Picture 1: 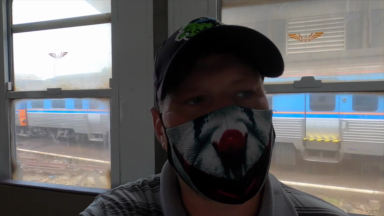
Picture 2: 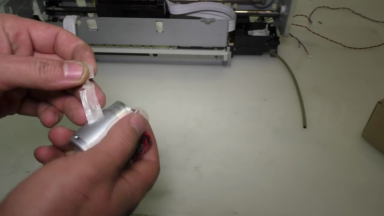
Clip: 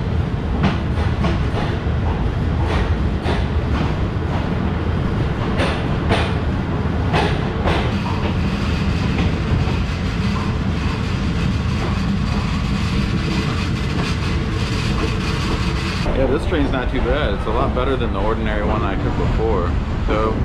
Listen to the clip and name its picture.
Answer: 1